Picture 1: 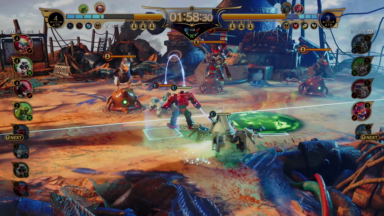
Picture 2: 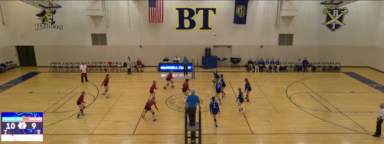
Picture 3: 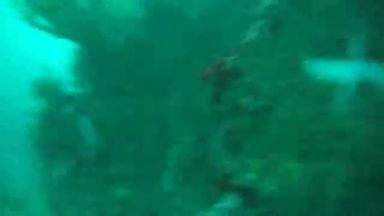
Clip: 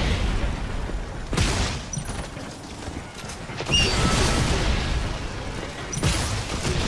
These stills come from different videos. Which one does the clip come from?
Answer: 1